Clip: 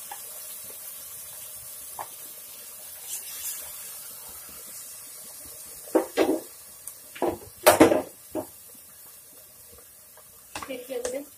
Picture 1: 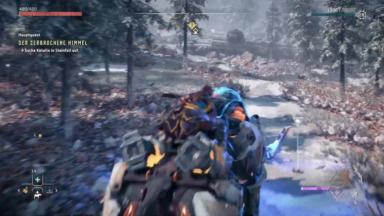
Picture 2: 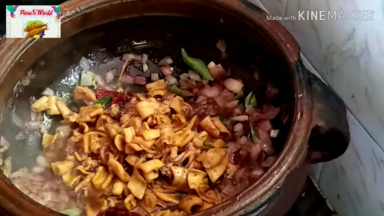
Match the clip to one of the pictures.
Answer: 2